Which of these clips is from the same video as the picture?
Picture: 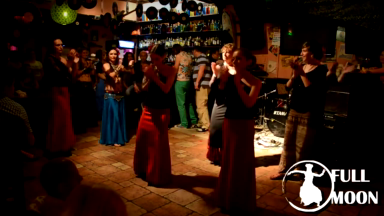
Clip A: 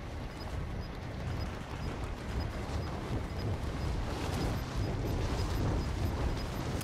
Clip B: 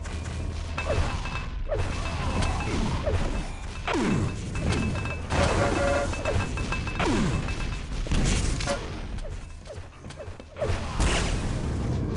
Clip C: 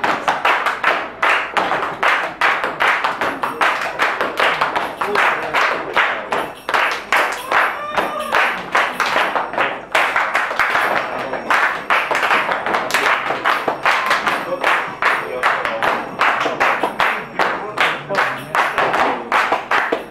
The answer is C